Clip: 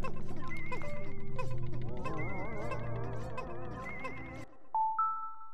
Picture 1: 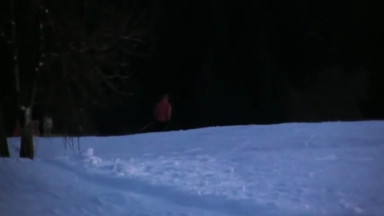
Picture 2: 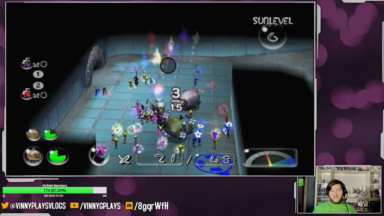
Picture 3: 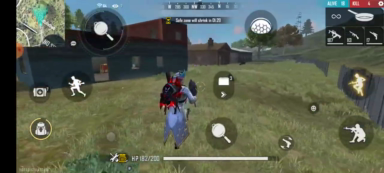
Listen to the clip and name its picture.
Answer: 2